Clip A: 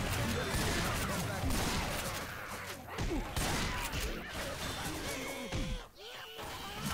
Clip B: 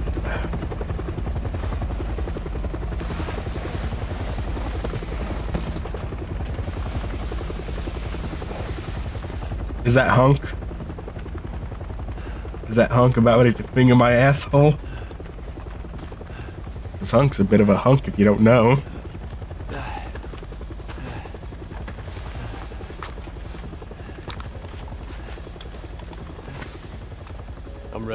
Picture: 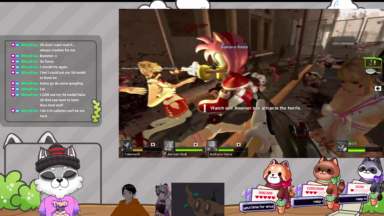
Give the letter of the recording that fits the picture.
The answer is A